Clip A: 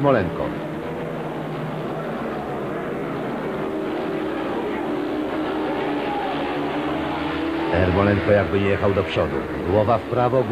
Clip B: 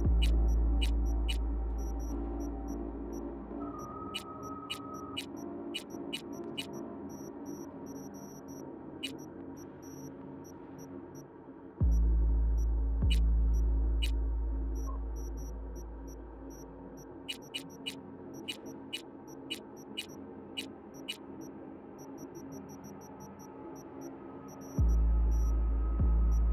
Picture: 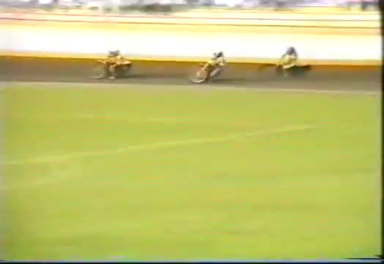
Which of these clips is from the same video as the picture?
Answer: A